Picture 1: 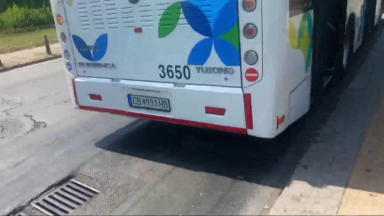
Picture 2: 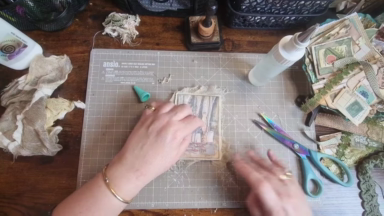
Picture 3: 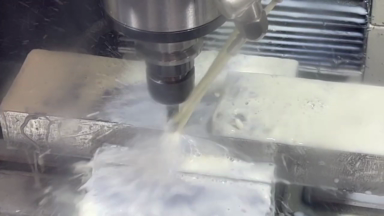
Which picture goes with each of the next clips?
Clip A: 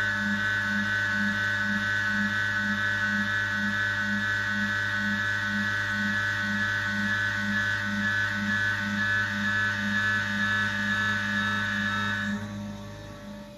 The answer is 3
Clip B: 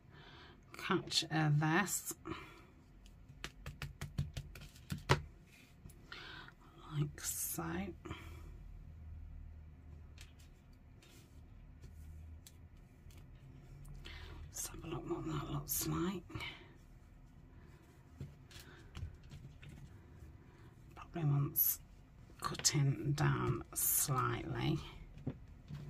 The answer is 2